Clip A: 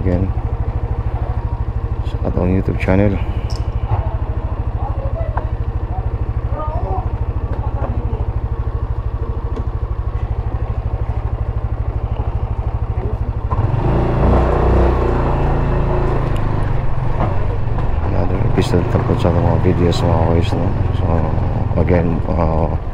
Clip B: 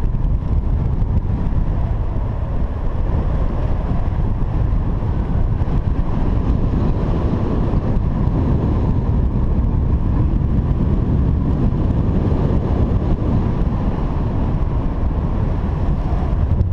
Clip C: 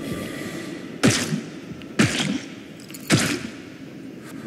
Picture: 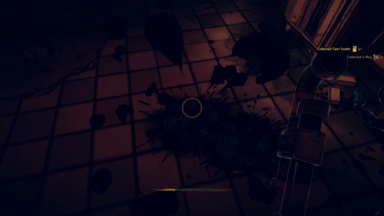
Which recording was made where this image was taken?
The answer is C